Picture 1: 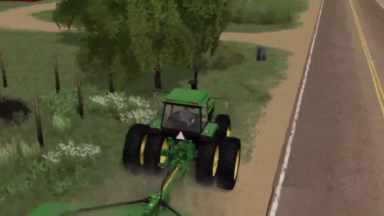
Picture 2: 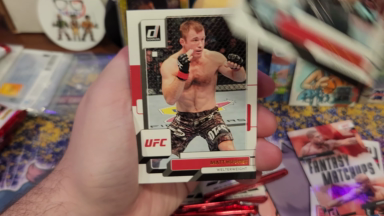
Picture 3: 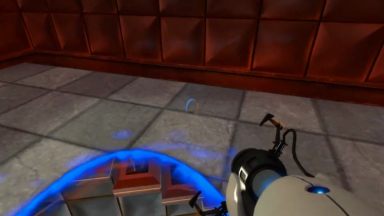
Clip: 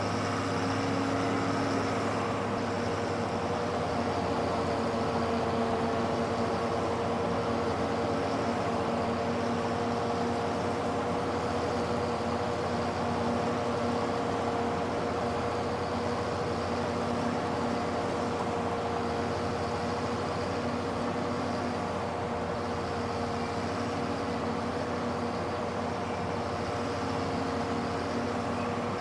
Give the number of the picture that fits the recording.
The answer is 1